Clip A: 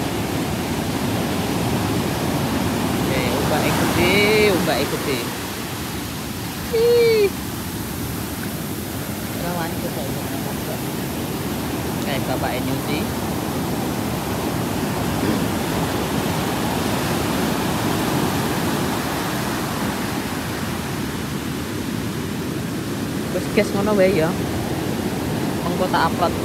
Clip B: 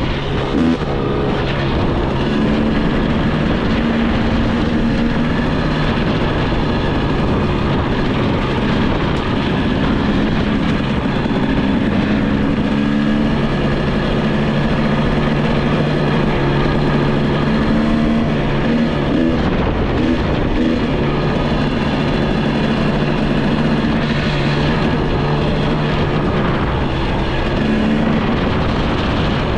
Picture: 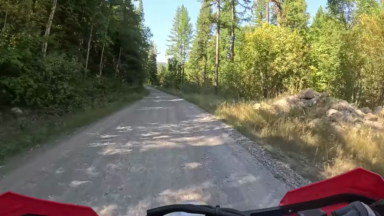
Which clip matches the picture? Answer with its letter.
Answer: B